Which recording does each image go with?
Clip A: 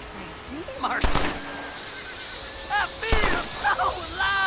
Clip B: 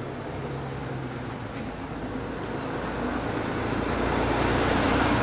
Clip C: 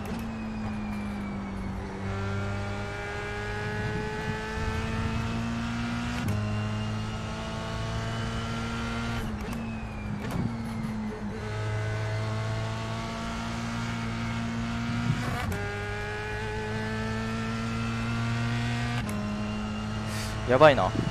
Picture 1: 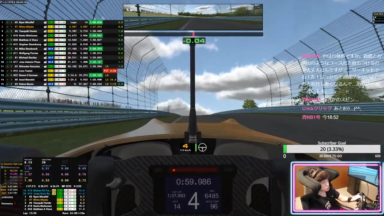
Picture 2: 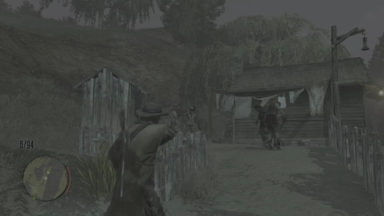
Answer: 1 C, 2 A